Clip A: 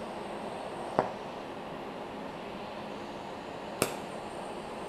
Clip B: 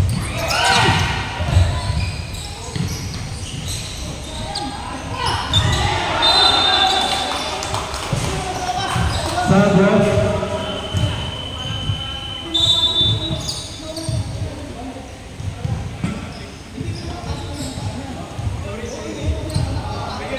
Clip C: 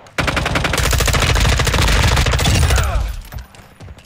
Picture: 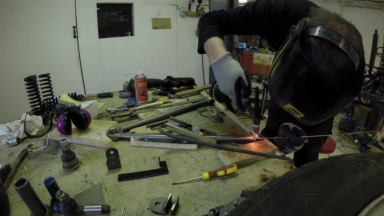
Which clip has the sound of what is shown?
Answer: A